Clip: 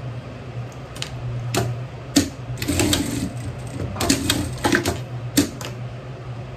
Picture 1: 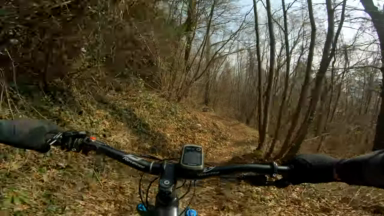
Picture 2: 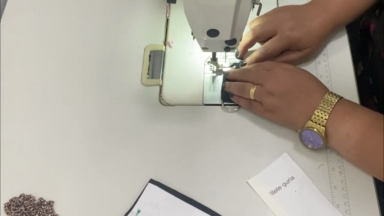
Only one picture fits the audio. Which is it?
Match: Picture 2